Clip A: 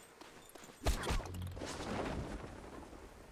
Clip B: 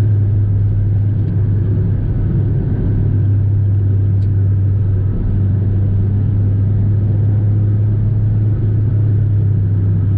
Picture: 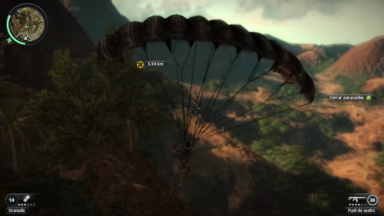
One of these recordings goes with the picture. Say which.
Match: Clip A